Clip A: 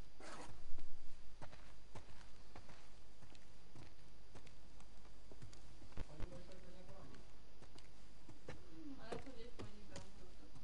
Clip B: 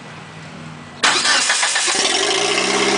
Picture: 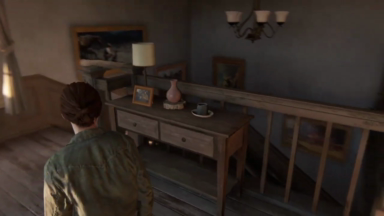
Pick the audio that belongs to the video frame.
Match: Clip A